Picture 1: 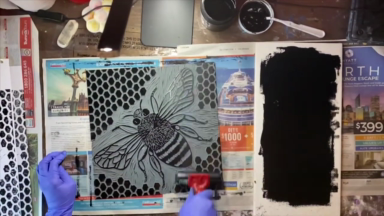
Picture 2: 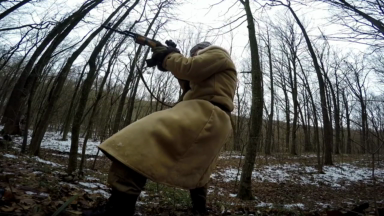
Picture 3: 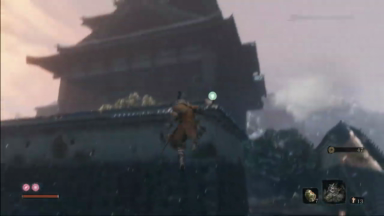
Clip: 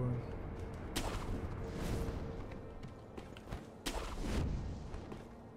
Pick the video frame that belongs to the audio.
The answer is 3